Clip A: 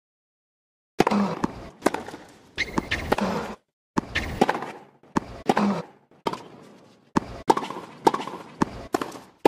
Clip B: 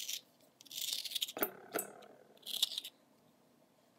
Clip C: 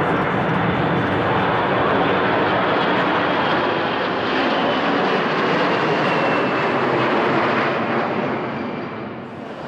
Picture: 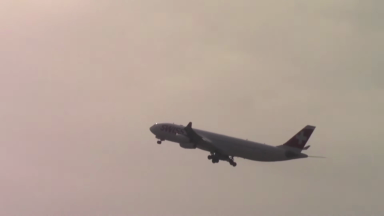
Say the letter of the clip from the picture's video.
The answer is C